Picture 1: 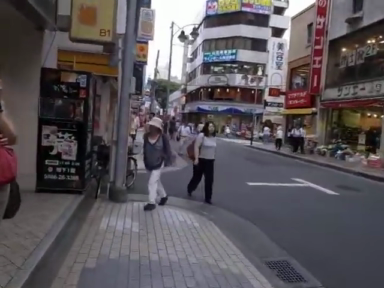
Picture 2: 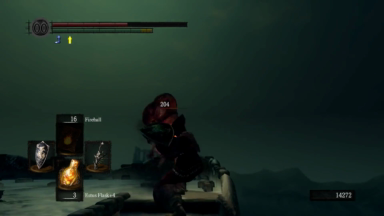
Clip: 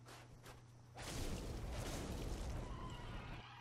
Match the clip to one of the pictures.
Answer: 2